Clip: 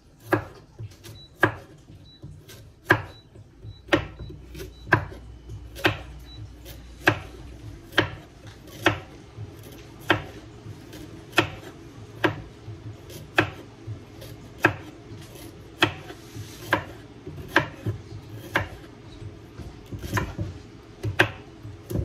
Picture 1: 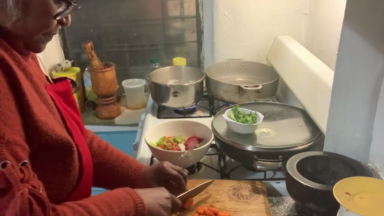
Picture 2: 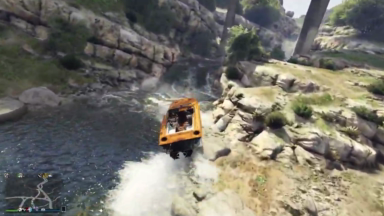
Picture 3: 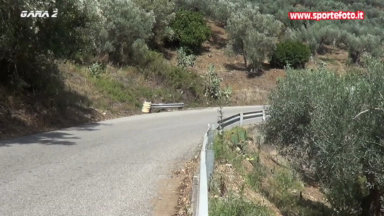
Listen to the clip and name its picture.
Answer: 1